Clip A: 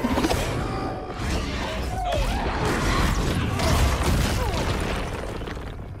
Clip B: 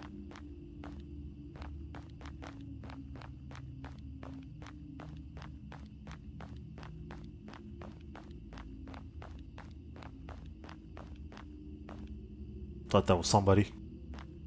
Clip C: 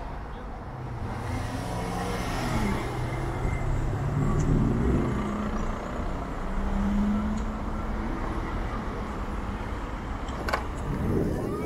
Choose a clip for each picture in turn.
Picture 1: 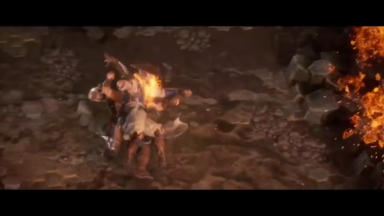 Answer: A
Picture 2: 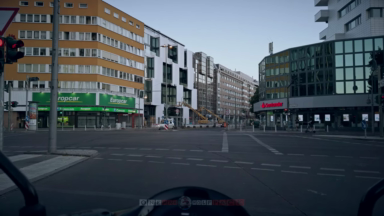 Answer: C